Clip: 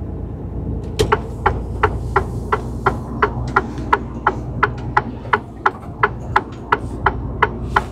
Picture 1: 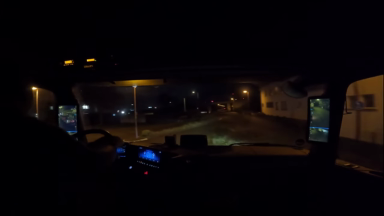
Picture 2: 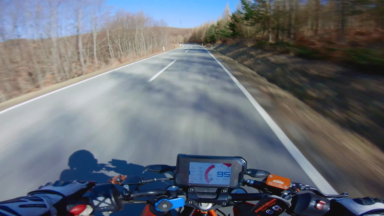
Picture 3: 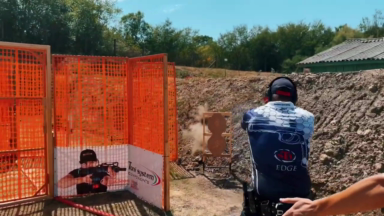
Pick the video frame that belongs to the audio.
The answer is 1